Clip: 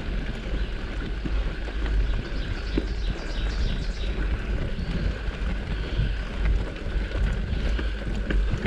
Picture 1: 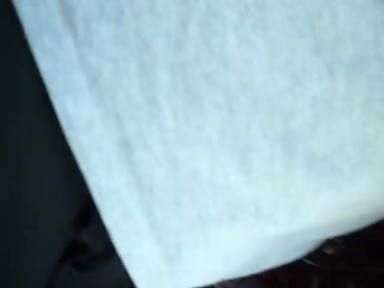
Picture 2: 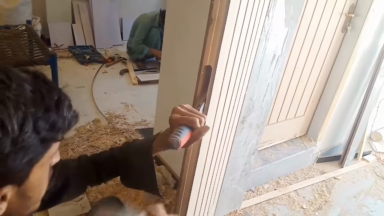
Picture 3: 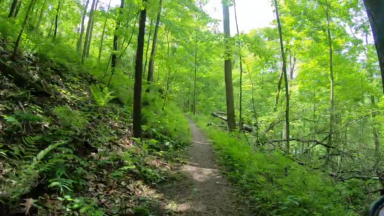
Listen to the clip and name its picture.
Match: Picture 3